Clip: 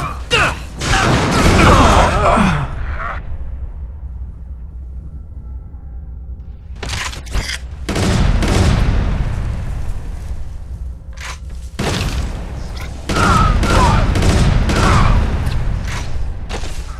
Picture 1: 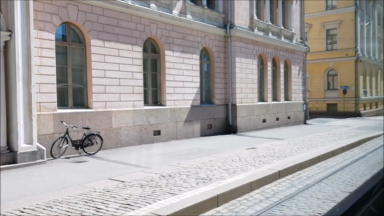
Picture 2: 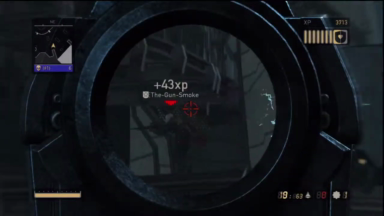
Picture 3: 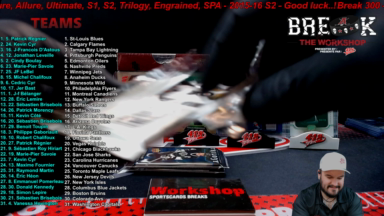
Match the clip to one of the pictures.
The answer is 2